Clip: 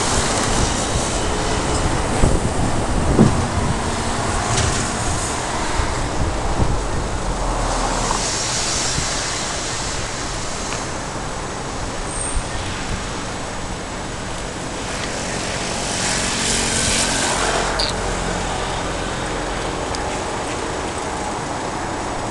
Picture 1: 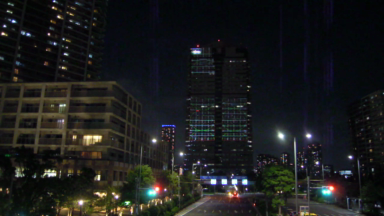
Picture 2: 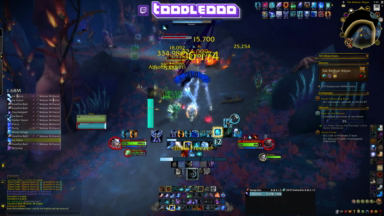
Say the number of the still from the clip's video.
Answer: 1